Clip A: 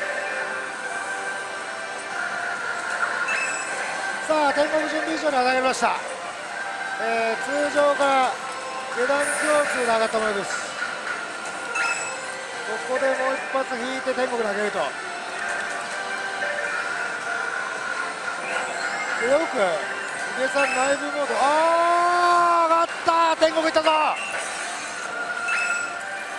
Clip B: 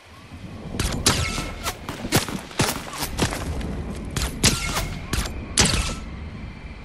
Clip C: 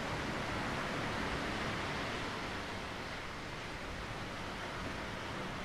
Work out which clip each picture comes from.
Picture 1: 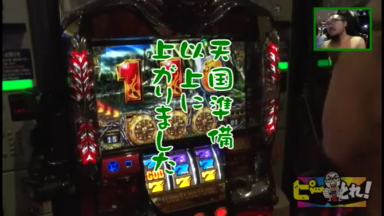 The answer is A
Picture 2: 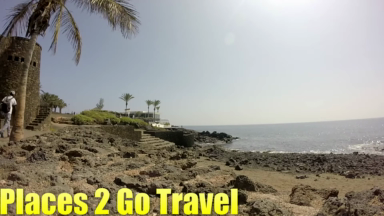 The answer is C